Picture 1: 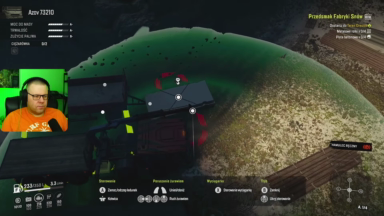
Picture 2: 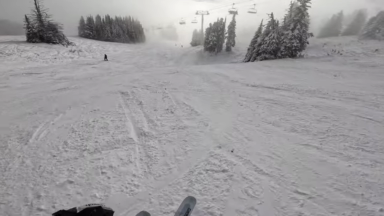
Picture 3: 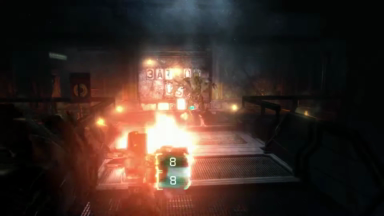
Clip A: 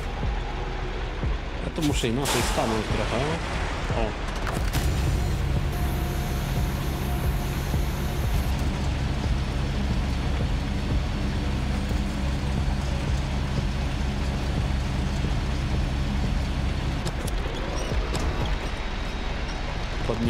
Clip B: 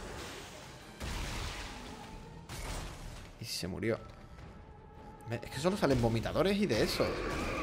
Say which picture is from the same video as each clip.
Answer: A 1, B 3